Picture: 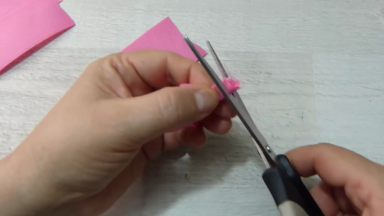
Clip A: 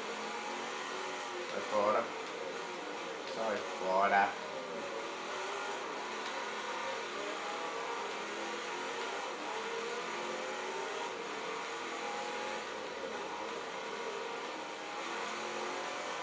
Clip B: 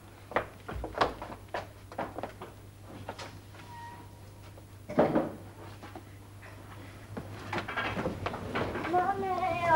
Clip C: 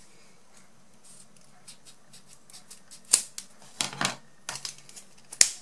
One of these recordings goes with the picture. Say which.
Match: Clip C